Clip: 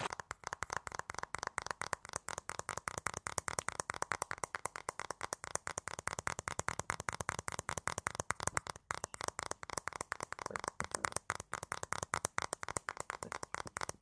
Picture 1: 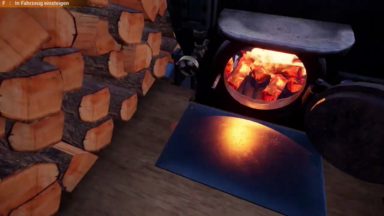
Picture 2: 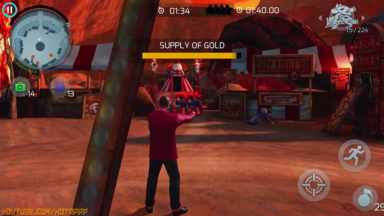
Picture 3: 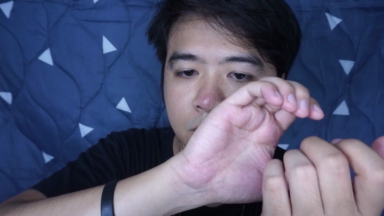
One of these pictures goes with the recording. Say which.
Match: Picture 3